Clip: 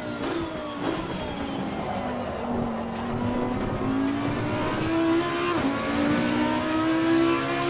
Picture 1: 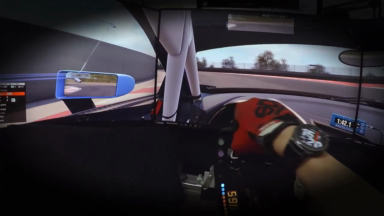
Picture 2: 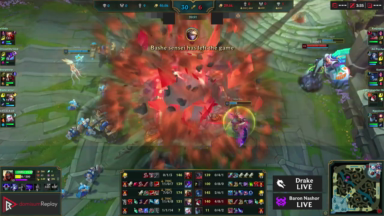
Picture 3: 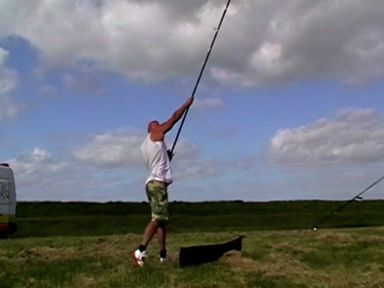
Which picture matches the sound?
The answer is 1